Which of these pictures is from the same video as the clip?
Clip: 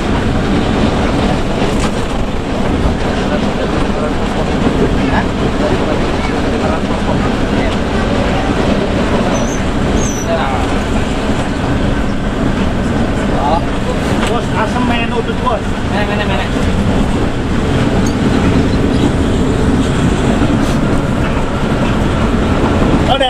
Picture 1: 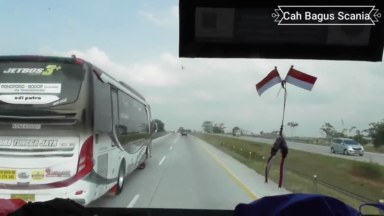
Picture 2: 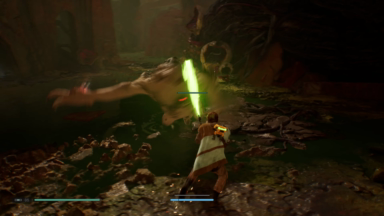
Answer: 1